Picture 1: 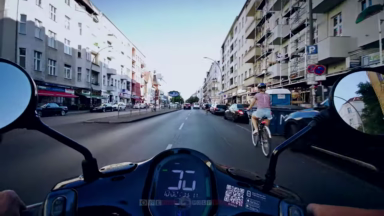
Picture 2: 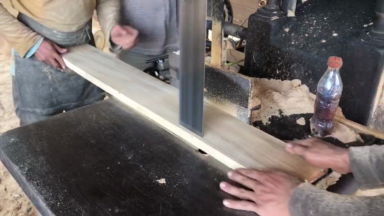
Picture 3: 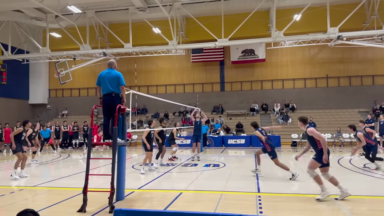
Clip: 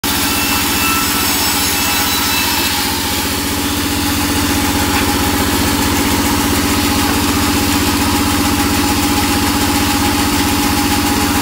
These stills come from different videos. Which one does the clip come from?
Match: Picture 2